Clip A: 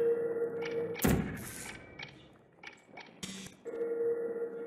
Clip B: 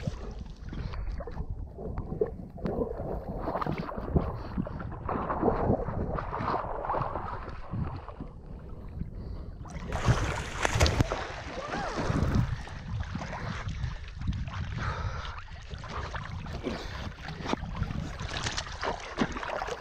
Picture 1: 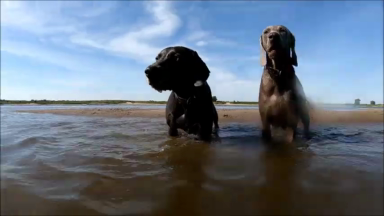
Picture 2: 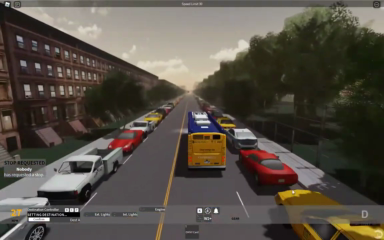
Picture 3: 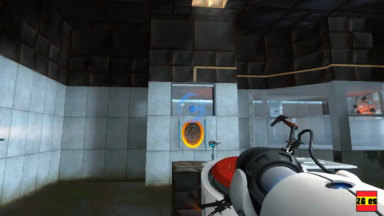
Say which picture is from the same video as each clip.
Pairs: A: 3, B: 1